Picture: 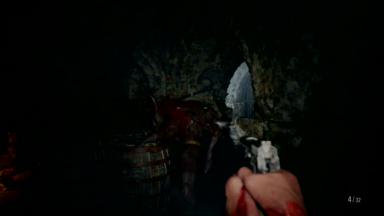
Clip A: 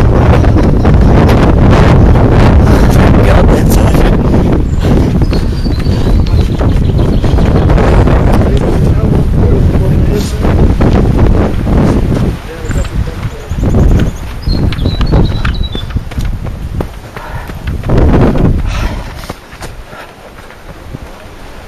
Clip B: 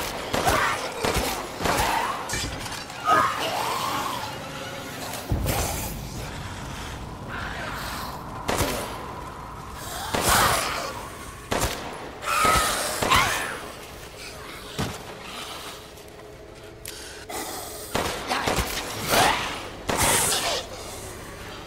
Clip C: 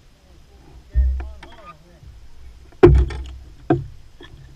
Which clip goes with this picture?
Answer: B